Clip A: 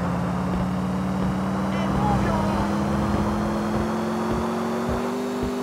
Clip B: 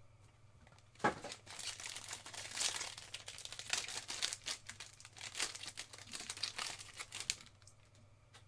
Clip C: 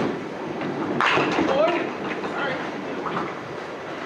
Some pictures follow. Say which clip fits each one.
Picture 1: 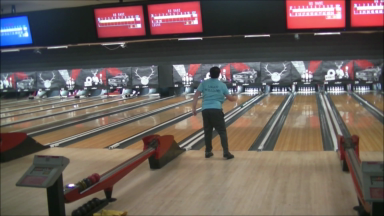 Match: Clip C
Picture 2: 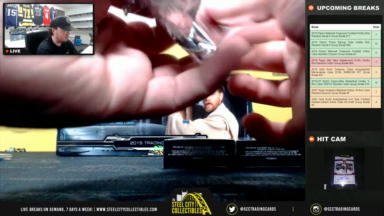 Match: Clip B